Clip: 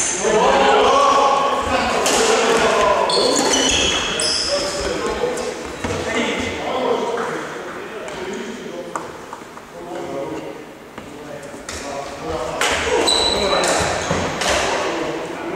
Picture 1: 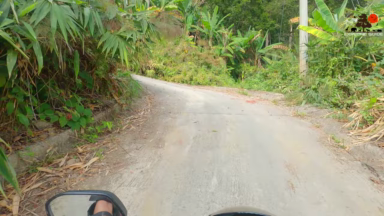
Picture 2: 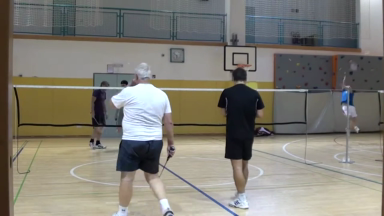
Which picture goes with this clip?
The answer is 2